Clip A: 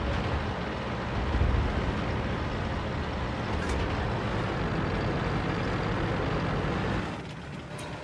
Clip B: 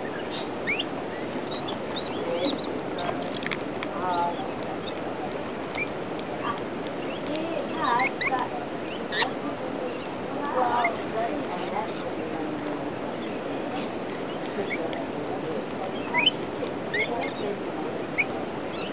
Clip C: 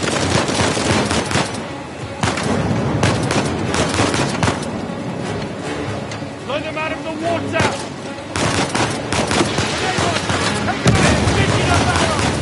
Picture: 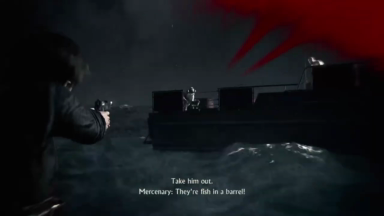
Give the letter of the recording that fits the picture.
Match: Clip C